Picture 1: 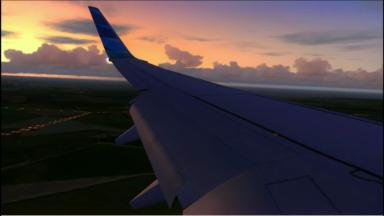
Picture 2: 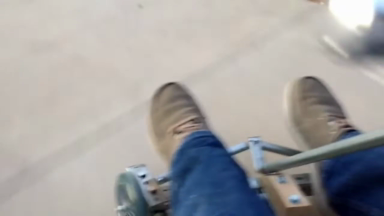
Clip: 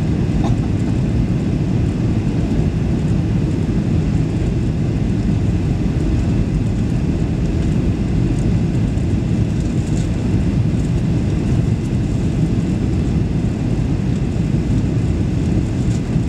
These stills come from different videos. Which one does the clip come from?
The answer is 1